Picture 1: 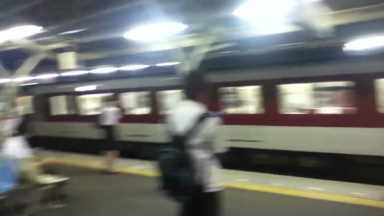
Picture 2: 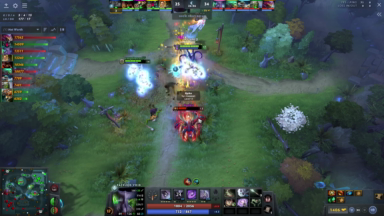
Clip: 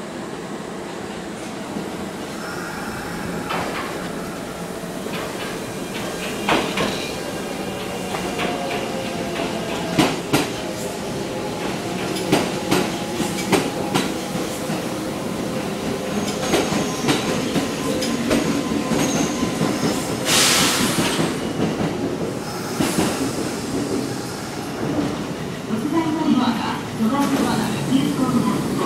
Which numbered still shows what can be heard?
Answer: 1